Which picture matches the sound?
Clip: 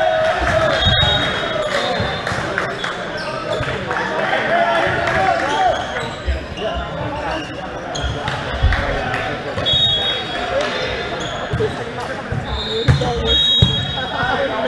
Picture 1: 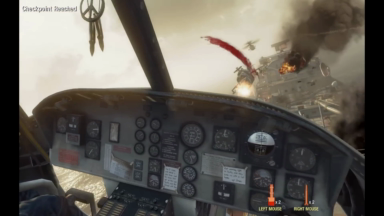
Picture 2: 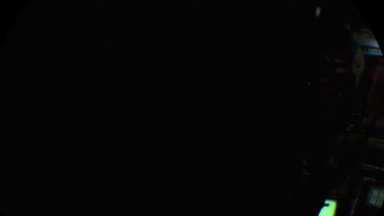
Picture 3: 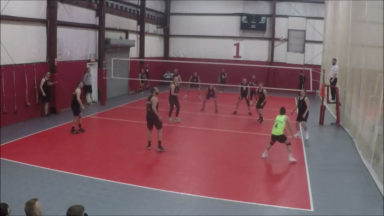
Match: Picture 3